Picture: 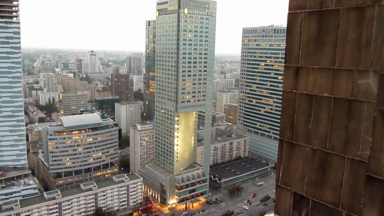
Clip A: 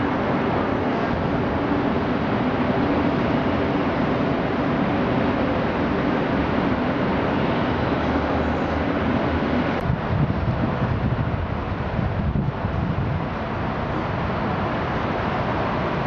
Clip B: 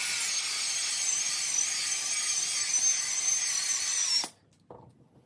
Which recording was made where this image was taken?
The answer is A